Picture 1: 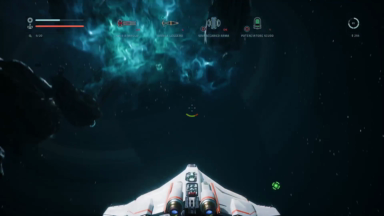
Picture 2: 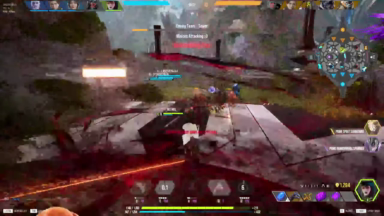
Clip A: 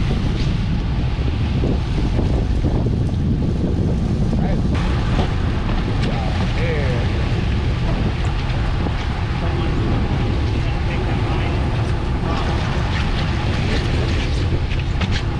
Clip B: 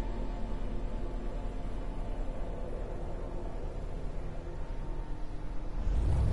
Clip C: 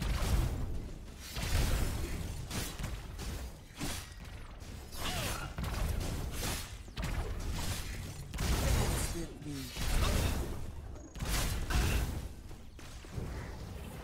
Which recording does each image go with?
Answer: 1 B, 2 C